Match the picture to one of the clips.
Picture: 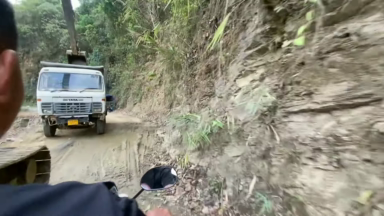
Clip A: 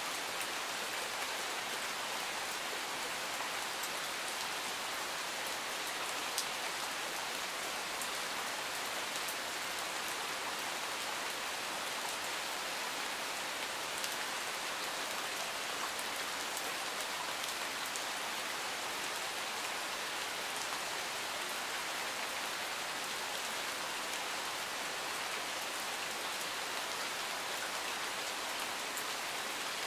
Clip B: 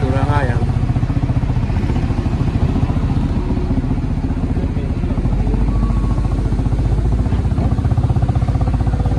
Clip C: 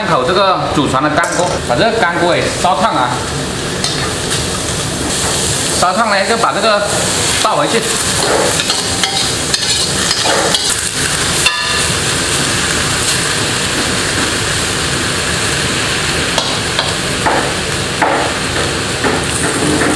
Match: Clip B